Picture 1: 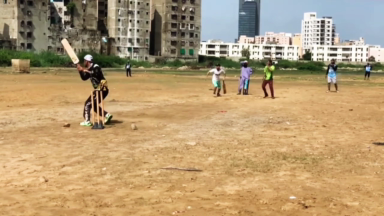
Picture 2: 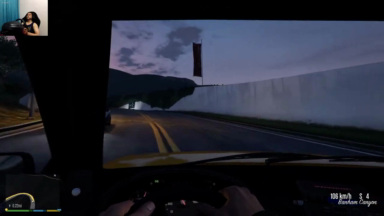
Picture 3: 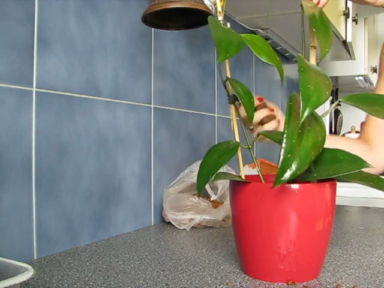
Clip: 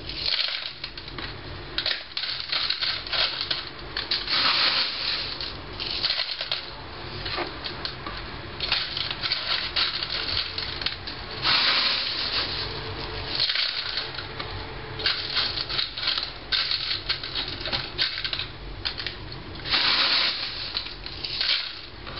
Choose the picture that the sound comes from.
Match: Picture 3